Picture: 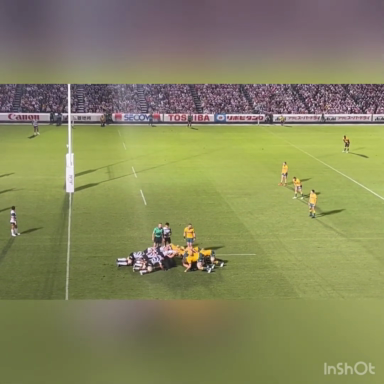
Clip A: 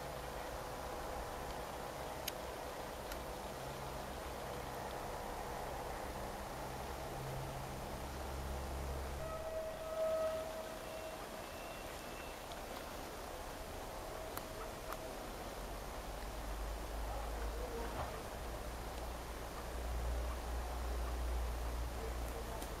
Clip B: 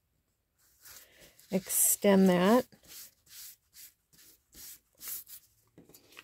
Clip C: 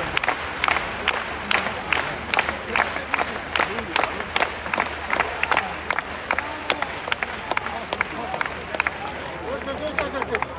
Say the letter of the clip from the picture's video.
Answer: C